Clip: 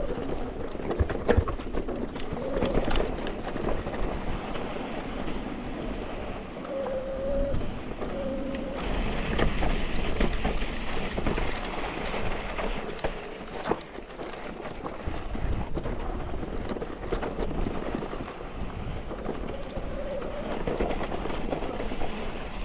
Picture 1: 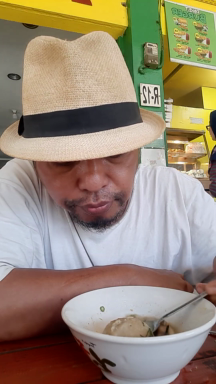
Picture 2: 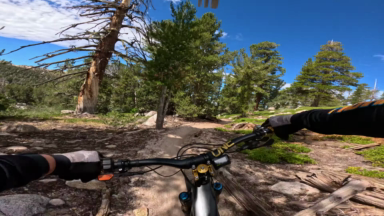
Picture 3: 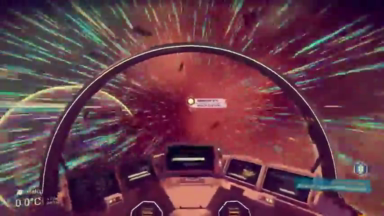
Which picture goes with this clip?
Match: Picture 2